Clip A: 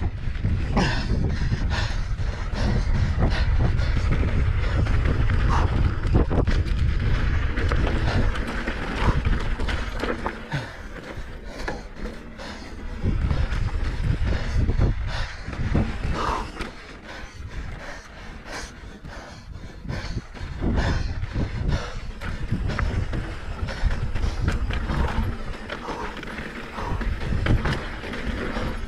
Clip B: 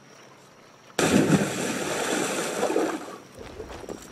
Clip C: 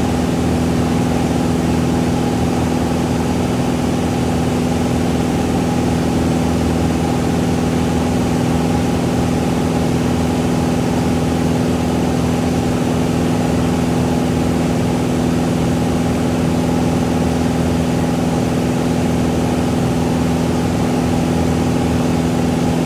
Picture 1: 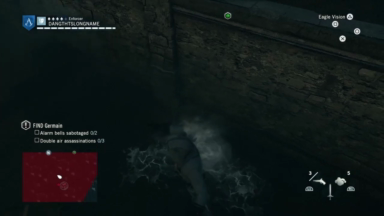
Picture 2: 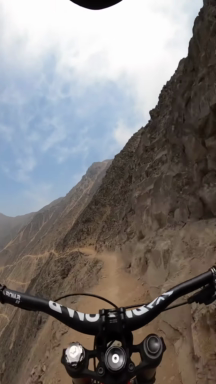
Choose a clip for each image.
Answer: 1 B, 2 A